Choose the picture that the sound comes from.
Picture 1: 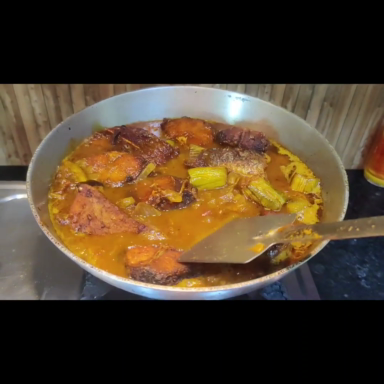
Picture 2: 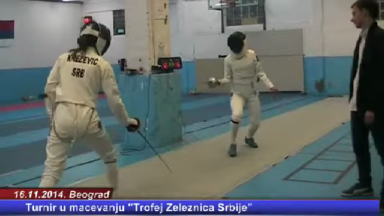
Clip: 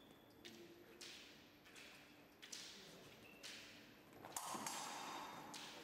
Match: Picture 2